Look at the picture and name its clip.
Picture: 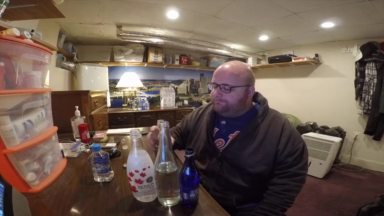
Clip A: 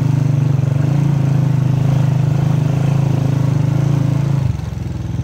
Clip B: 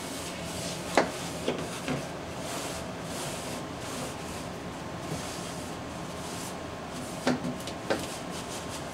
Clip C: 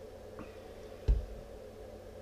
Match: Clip C